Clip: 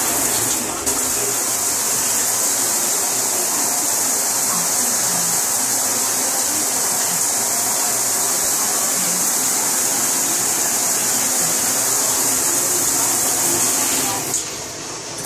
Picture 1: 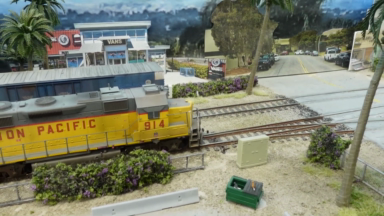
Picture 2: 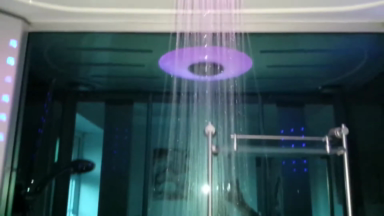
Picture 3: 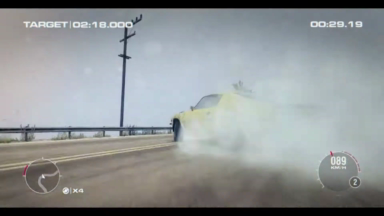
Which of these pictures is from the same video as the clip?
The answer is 2